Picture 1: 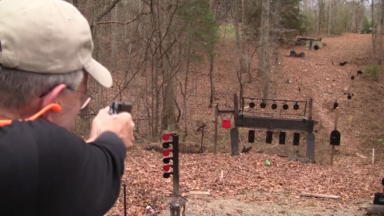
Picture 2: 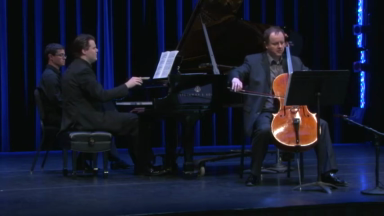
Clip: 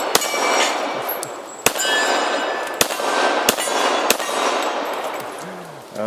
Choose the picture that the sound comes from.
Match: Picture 1